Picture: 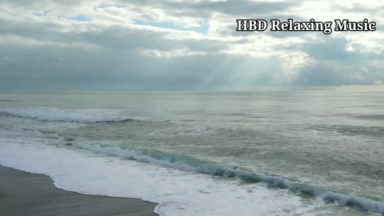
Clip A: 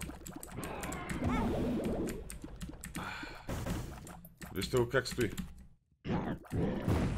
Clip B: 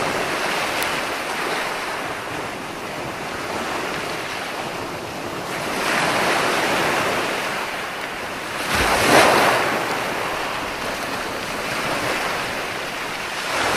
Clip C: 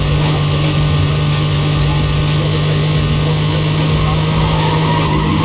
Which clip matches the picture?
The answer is B